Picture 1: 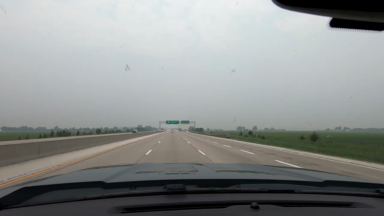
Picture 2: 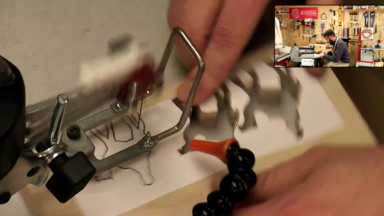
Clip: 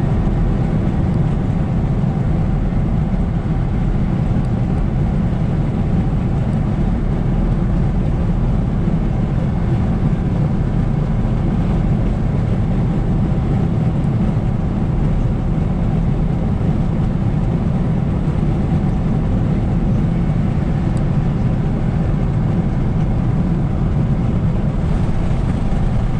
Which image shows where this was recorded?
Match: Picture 1